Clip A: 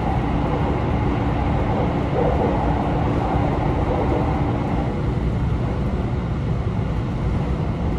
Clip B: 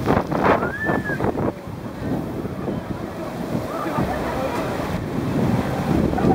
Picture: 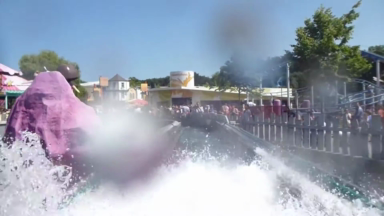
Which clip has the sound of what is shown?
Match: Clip B